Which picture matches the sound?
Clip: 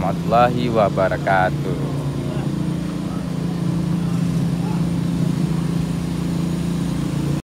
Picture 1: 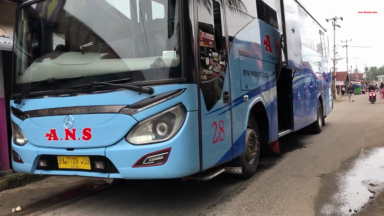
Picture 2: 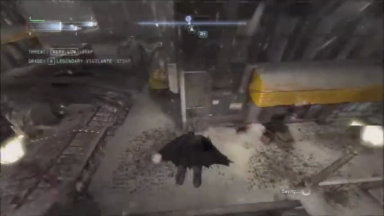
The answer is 1